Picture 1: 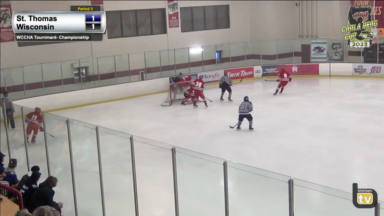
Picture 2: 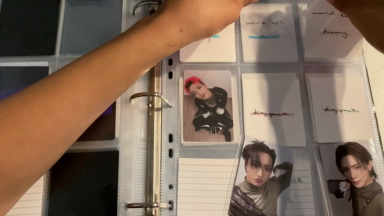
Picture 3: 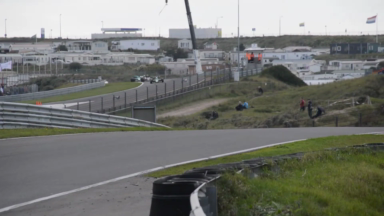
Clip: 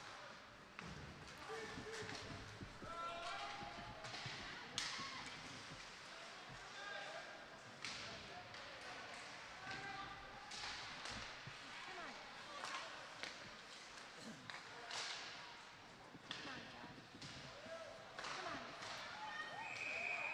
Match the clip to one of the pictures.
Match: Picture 1